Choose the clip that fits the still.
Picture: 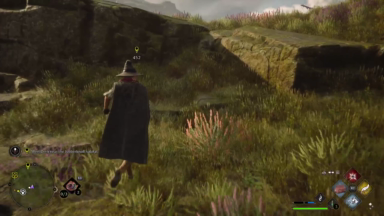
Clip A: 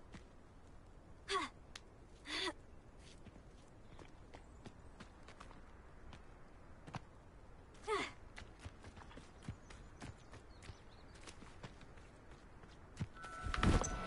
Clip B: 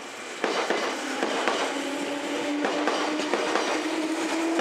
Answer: A